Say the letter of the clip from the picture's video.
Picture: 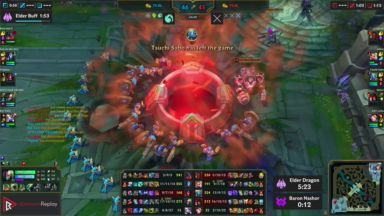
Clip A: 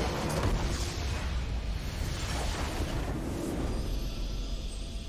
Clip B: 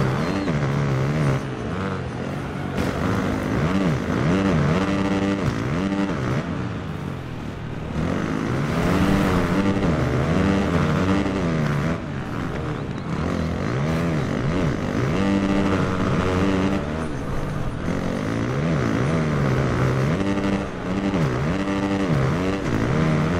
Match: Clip A